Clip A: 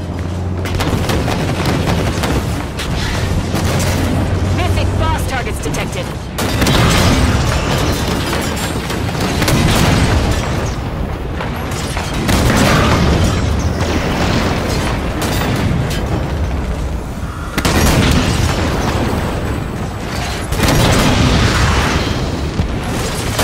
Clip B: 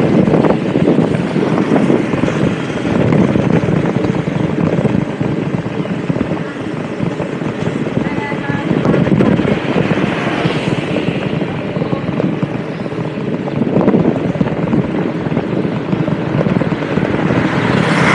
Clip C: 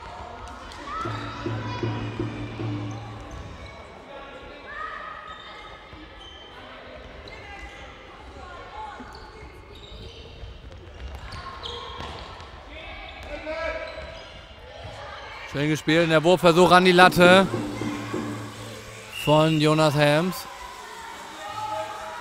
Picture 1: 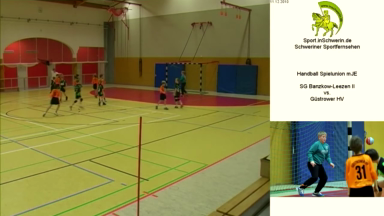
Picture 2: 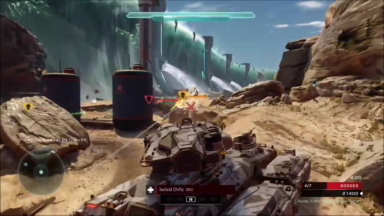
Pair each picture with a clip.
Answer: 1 C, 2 A